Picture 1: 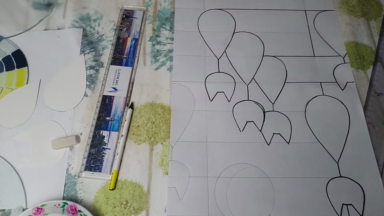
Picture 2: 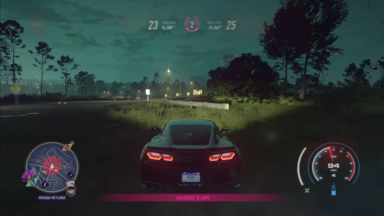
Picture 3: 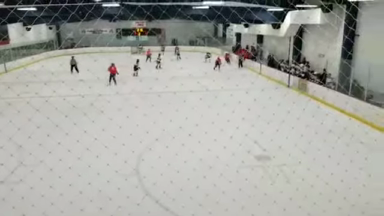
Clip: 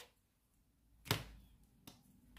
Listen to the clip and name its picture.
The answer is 1